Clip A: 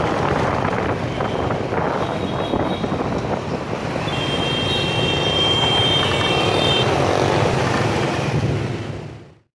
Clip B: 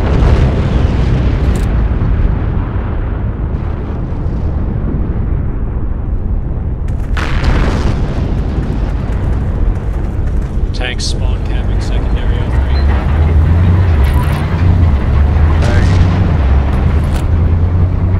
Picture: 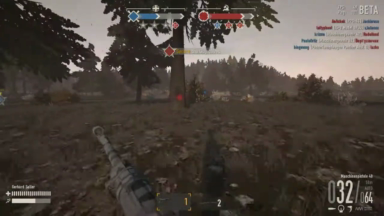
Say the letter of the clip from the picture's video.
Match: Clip B